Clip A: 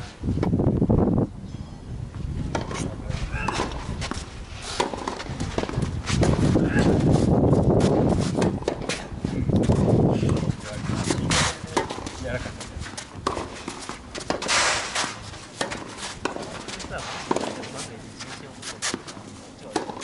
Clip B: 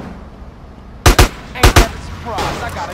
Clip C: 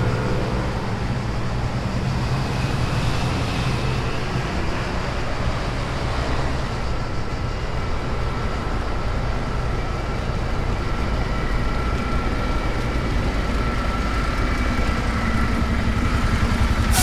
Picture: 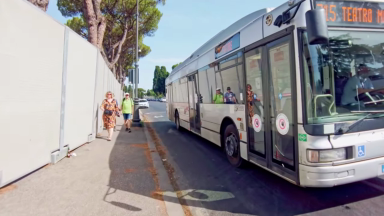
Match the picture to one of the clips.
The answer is C